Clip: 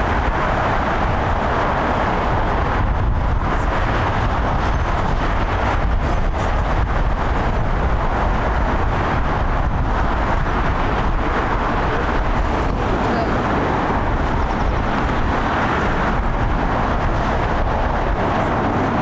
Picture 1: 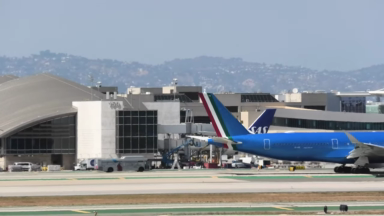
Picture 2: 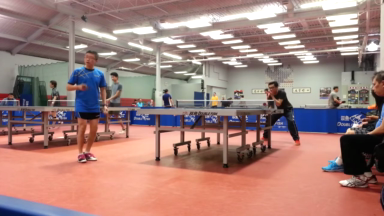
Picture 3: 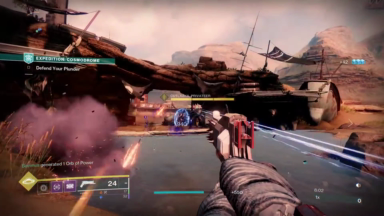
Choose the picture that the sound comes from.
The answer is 1